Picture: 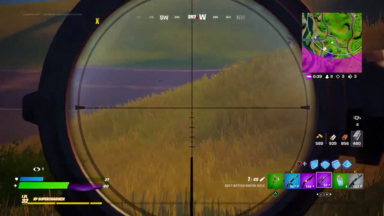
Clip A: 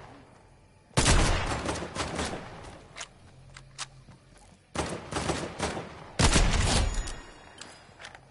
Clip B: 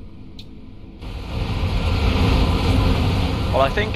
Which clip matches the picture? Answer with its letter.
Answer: A